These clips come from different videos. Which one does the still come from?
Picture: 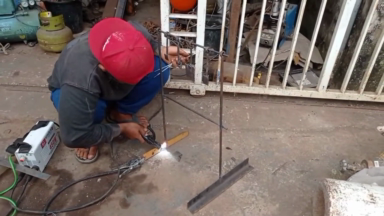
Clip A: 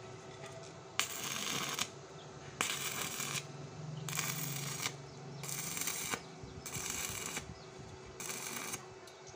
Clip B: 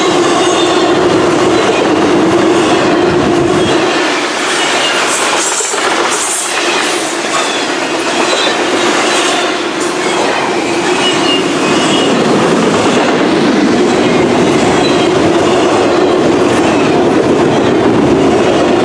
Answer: A